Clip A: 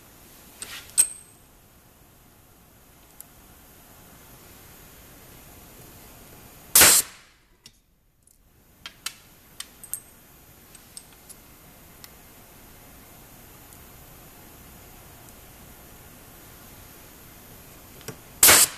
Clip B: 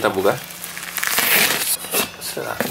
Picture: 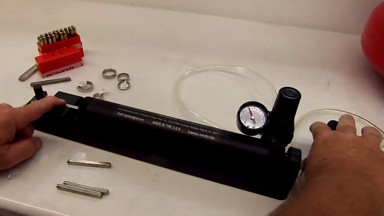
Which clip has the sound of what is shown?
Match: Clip A